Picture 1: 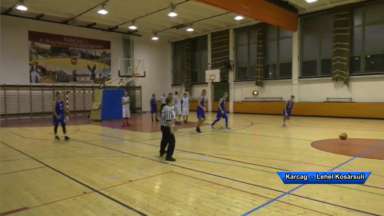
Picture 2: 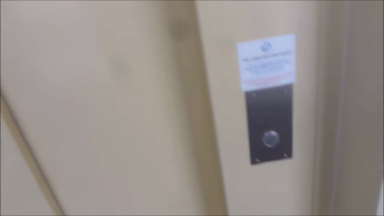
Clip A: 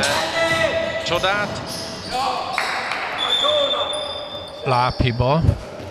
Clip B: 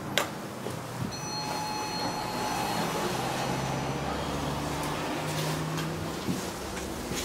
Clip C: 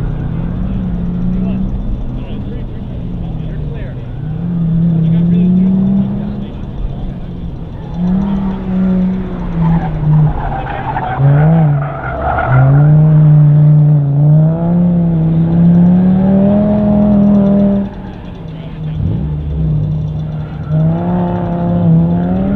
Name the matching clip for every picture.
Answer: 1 A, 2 B